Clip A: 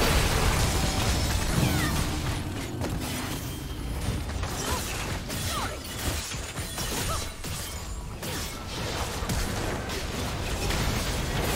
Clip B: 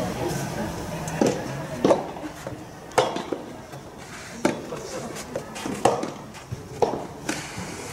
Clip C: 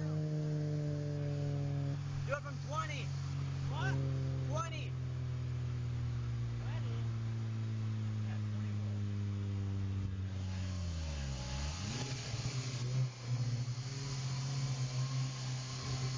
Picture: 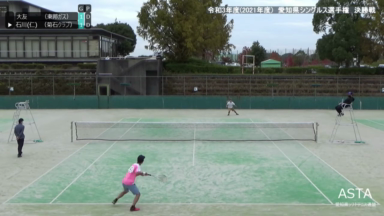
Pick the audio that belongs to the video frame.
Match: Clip B